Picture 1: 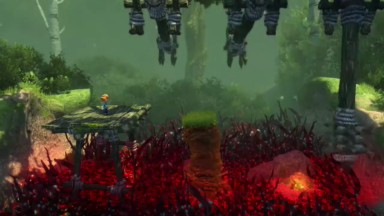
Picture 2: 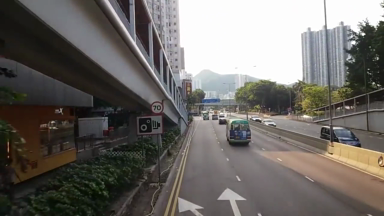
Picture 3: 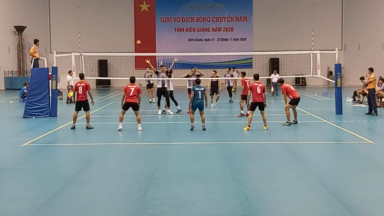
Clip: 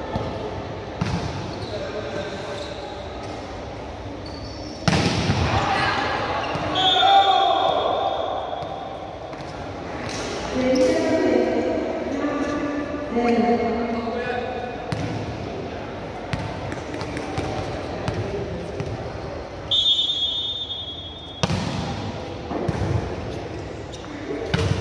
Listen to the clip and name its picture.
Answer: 3